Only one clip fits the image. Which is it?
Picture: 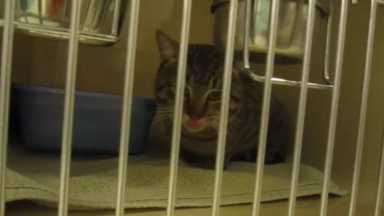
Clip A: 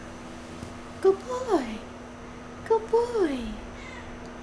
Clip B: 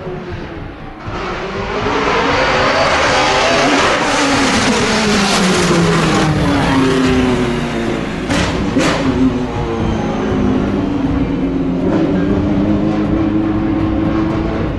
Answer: A